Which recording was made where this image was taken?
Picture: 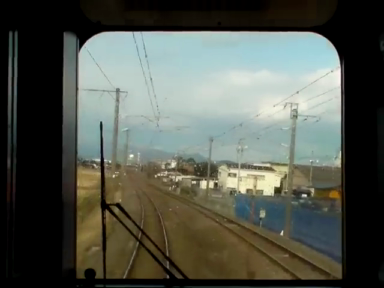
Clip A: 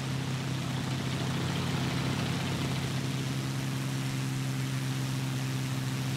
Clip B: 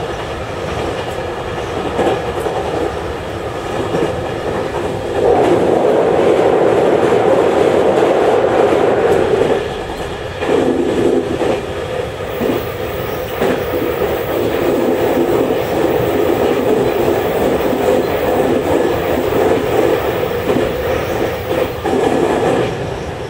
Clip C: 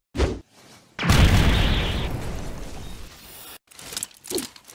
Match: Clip B